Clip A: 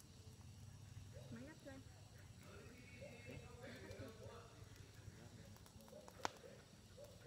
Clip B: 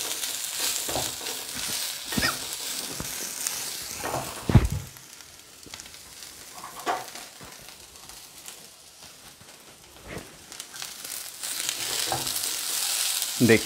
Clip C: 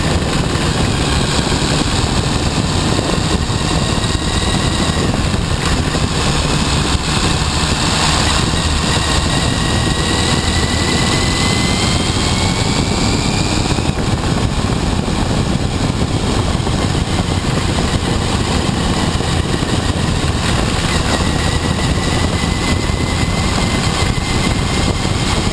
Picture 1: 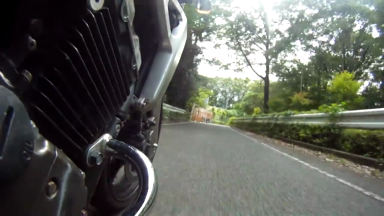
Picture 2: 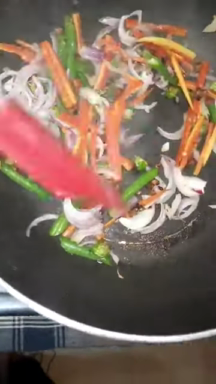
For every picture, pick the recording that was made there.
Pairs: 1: C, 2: B